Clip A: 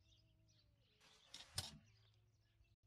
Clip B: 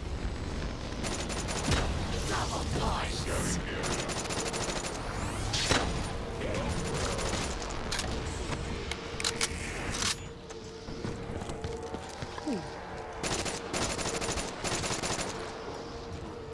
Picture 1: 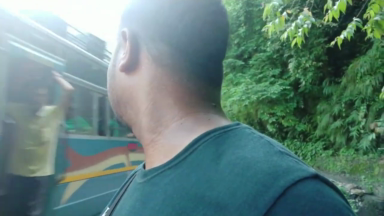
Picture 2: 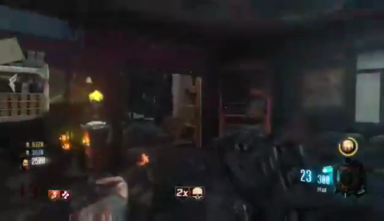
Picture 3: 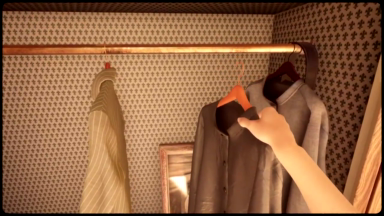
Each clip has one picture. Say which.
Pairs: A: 3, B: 2